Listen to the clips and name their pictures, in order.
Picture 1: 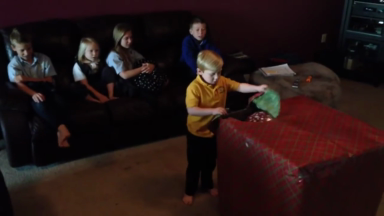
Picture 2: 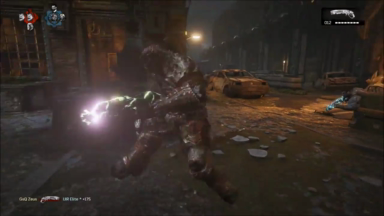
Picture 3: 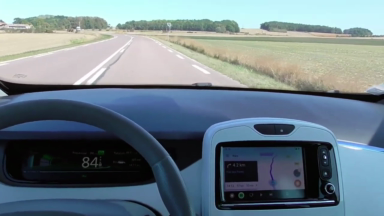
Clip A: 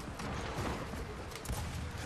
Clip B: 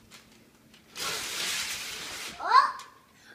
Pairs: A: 2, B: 1